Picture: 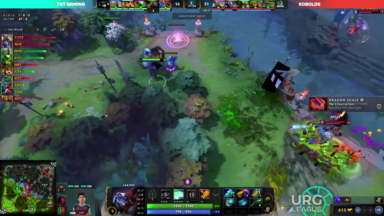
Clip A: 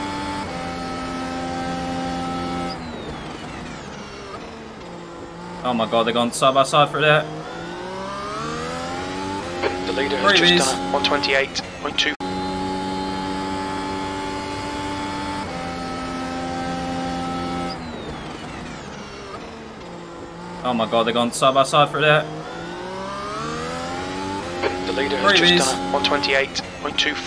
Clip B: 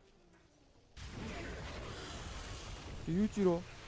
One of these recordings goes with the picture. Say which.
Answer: B